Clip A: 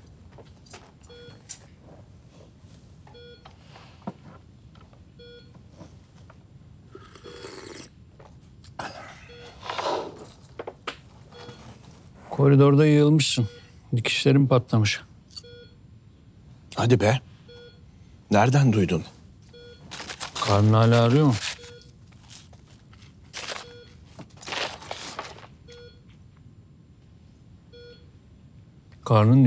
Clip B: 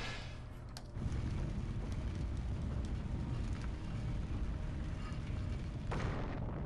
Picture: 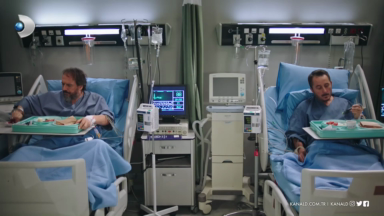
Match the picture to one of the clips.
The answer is A